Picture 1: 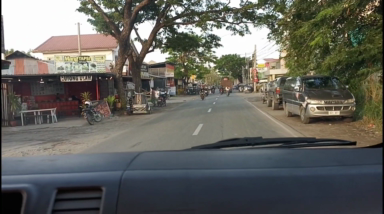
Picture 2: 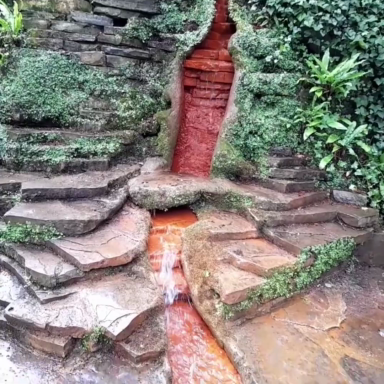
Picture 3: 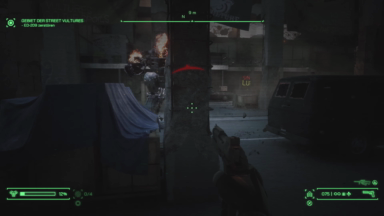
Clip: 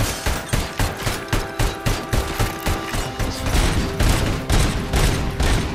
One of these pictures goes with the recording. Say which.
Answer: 3